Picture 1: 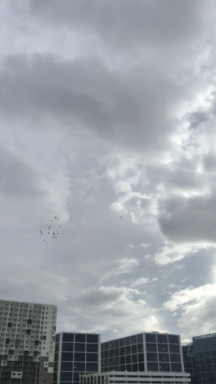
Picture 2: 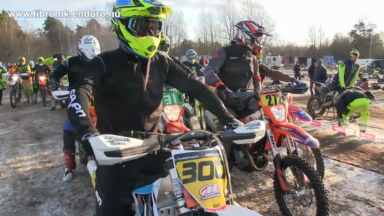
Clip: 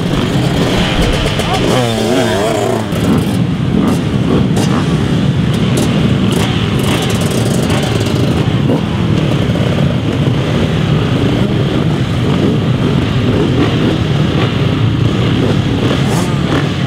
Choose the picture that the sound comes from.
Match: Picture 2